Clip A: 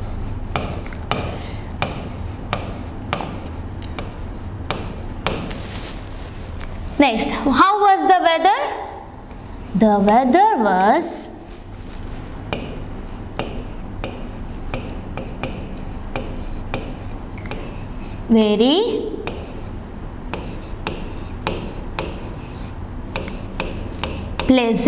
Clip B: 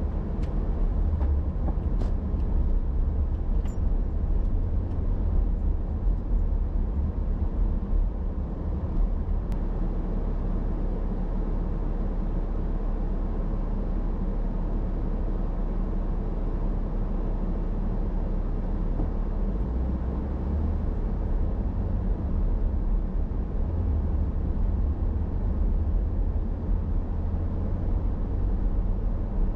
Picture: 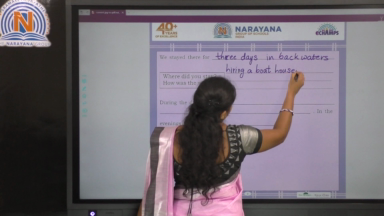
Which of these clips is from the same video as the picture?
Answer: A